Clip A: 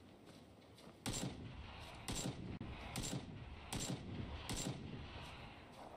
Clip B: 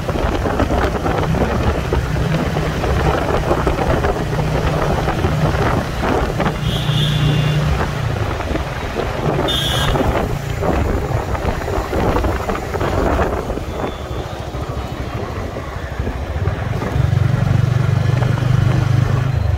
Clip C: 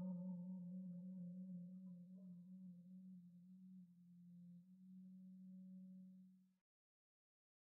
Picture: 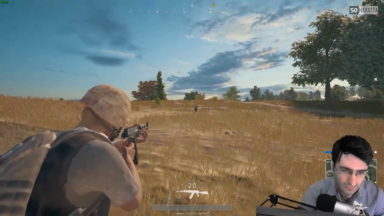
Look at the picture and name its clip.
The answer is A